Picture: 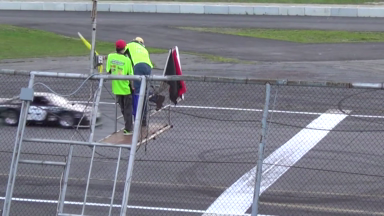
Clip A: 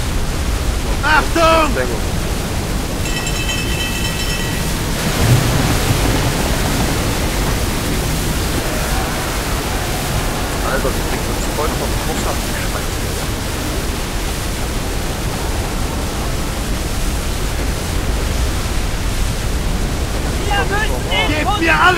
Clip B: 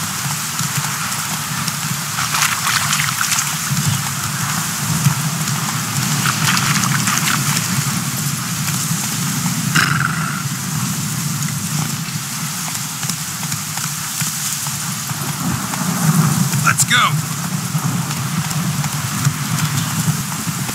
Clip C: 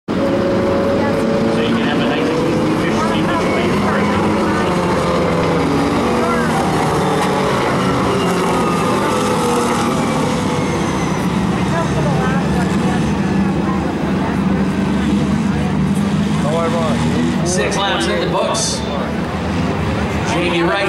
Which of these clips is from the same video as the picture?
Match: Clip C